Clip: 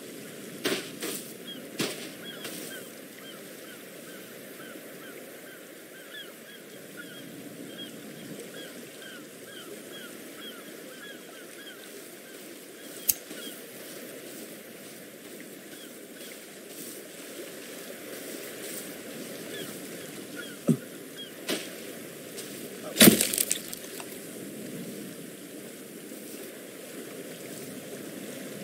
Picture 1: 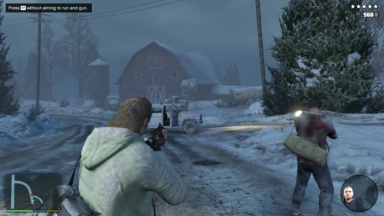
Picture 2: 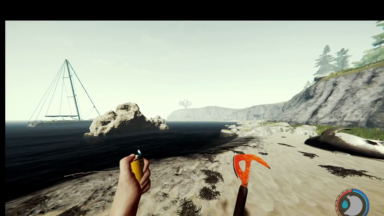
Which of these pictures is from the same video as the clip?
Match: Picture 2